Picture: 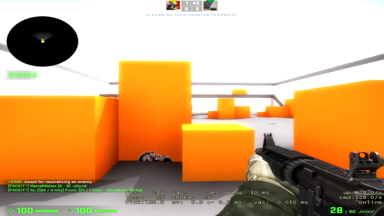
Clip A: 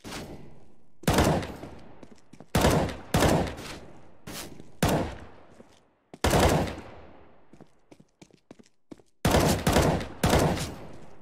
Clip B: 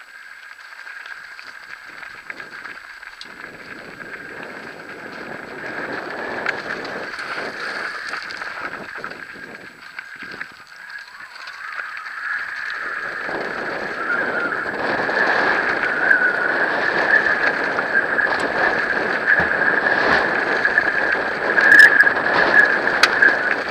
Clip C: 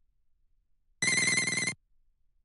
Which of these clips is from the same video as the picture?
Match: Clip A